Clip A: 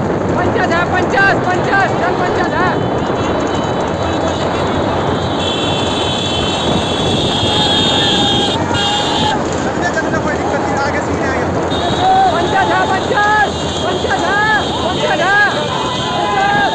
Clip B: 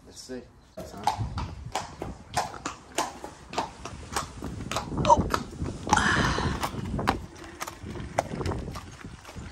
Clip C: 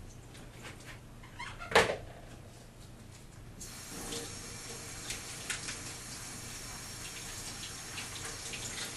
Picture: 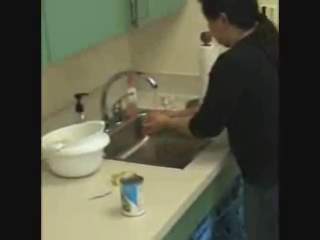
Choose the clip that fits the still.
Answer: C